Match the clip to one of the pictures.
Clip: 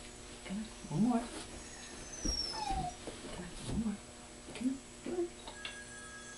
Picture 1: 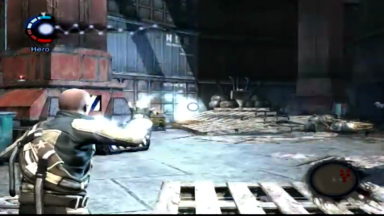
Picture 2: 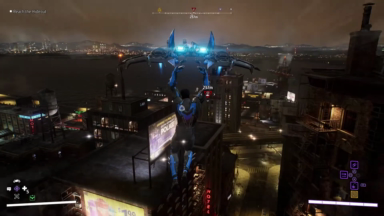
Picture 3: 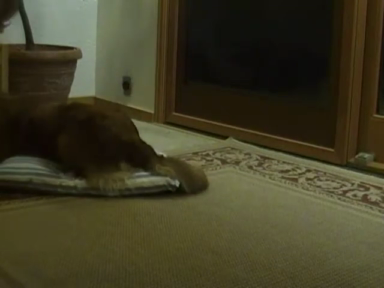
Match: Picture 3